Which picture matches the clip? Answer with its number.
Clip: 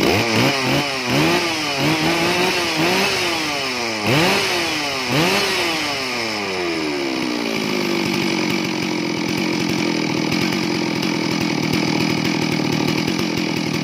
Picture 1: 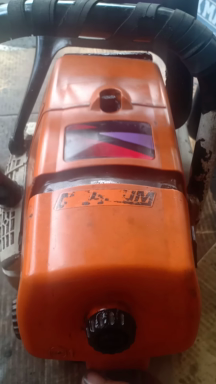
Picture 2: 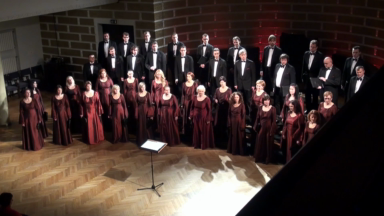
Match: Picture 1